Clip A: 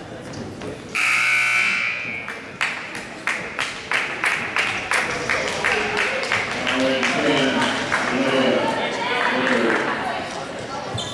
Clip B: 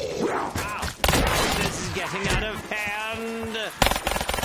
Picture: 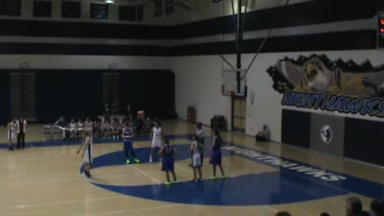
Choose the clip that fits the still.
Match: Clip A